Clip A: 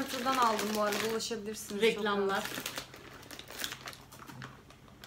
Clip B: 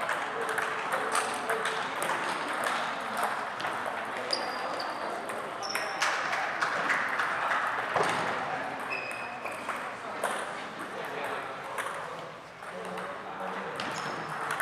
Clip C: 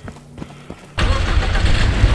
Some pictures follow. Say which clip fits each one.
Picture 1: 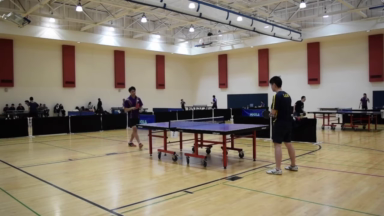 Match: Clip B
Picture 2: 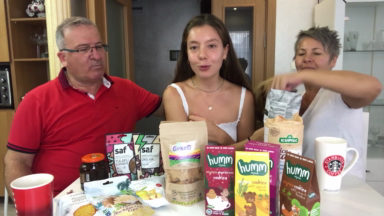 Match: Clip A